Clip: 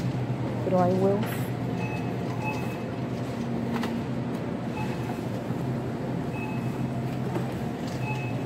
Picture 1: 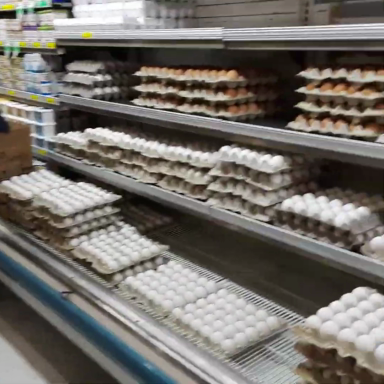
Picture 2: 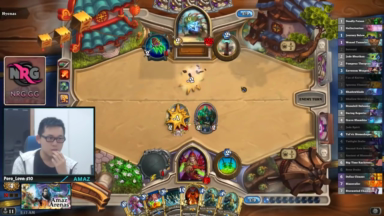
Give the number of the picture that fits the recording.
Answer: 1